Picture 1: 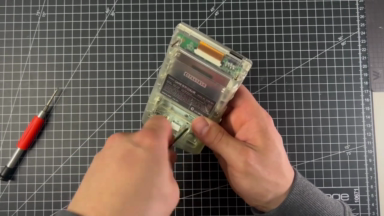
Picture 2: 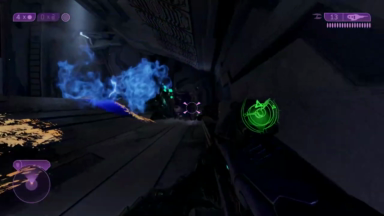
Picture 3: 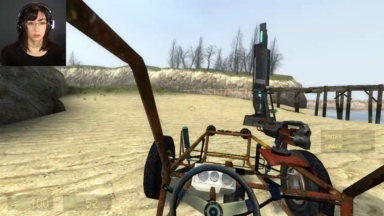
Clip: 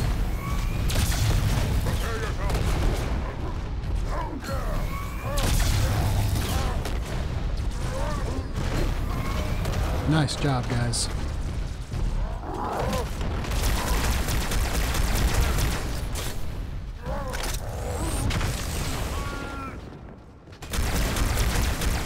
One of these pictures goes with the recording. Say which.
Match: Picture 2